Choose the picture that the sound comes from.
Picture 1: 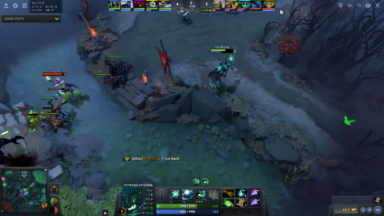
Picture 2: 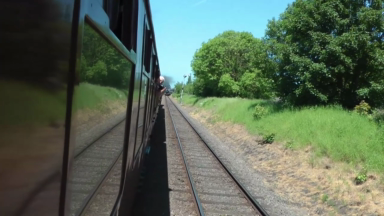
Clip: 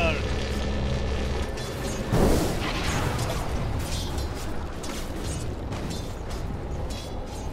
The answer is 1